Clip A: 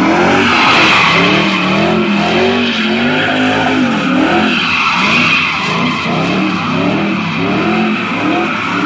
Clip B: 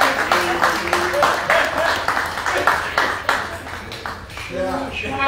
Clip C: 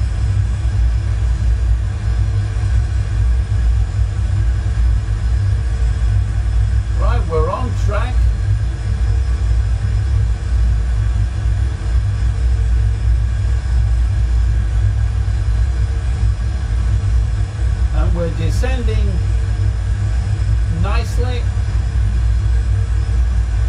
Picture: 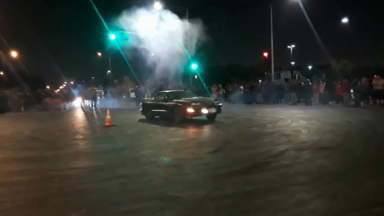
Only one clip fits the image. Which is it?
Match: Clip A